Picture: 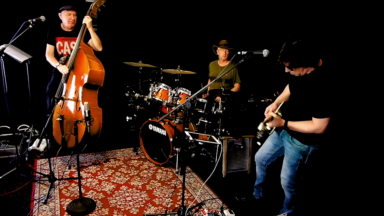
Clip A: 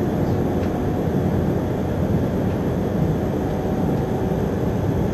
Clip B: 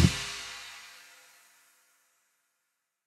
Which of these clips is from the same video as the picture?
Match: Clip B